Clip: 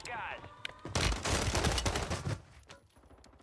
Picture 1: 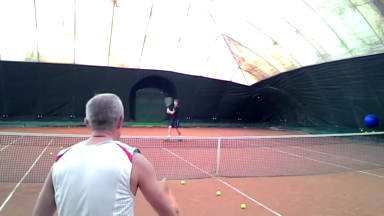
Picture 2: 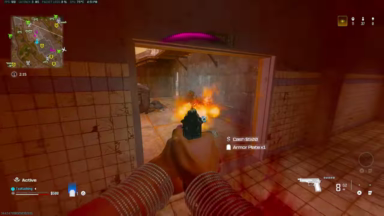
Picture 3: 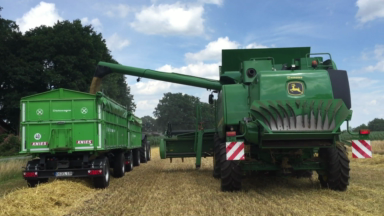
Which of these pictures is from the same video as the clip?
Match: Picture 2